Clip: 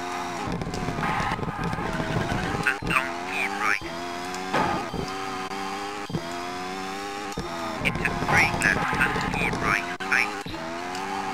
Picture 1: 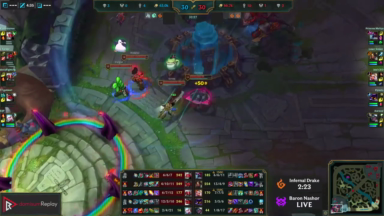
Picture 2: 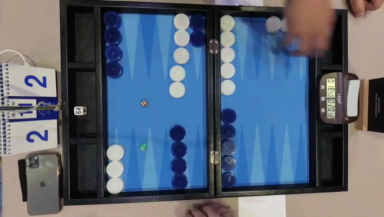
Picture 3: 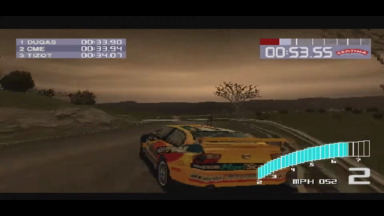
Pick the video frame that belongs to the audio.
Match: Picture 3